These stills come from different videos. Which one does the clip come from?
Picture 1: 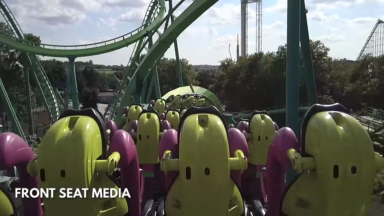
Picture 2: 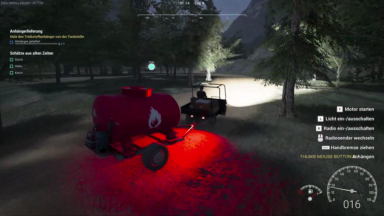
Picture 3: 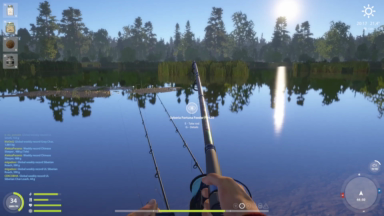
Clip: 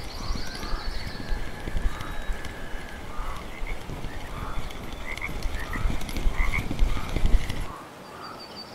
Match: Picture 3